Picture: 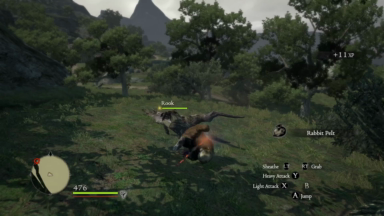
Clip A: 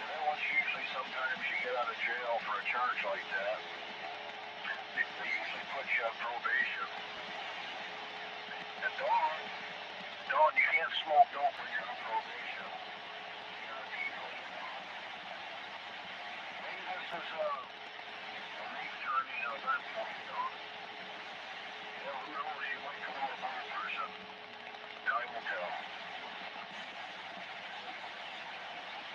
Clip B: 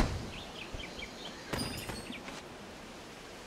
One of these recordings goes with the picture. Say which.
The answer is B